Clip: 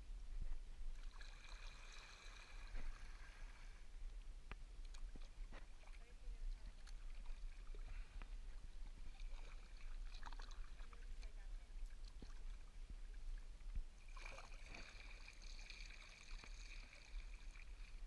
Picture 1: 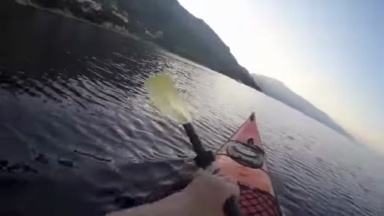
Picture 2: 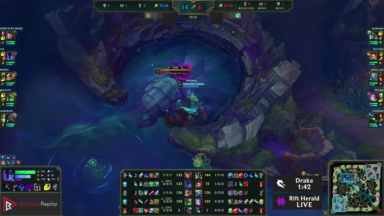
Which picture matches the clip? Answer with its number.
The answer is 1